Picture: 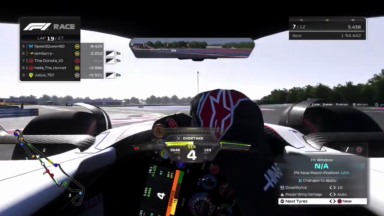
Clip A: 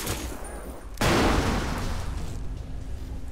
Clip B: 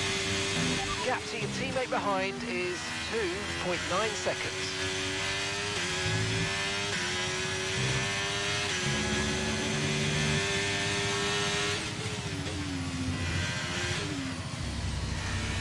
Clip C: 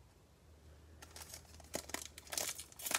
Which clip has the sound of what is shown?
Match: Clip B